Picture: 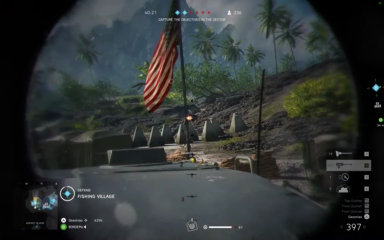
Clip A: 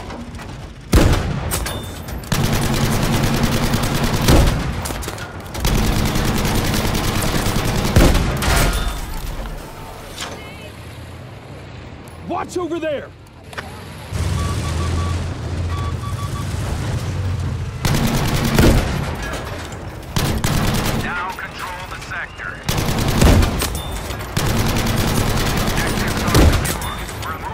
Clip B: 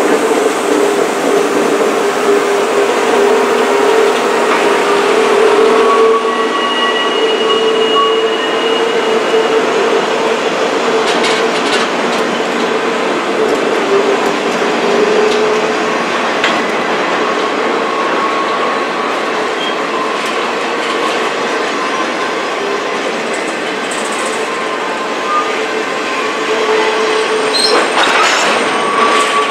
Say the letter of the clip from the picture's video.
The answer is A